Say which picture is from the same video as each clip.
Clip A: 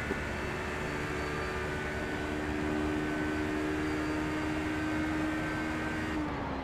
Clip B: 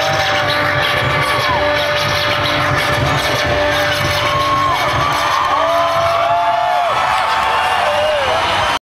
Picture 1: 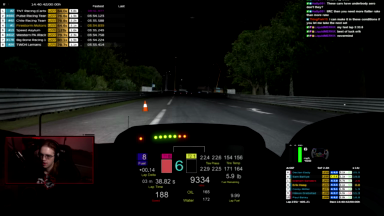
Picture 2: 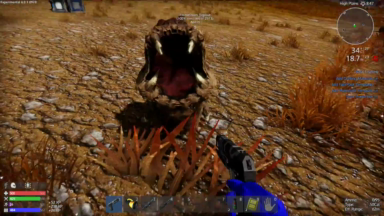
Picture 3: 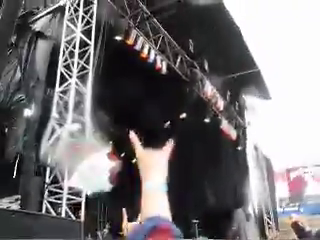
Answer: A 1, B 3